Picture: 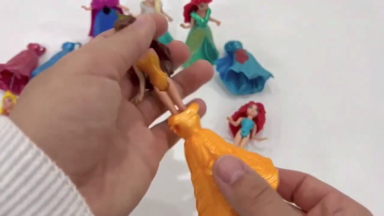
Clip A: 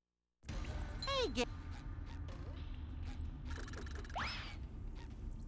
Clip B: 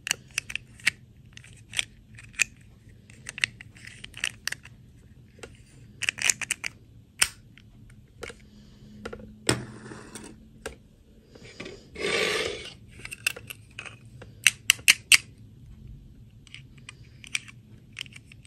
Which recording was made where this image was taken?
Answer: B